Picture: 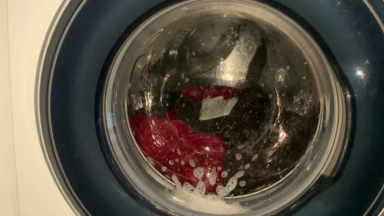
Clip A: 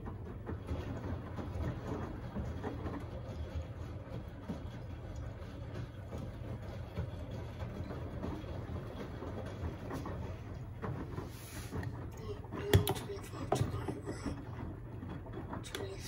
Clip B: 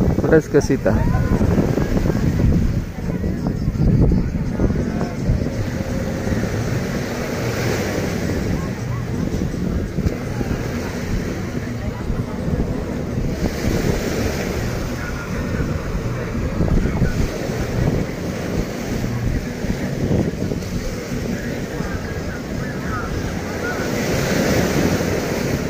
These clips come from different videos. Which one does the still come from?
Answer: A